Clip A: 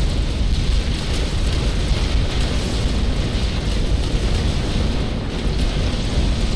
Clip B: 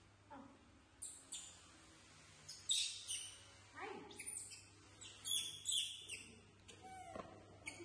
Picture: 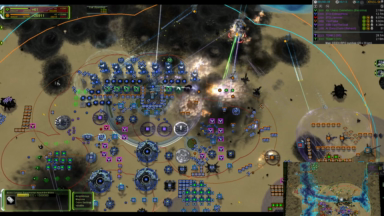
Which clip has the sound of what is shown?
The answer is A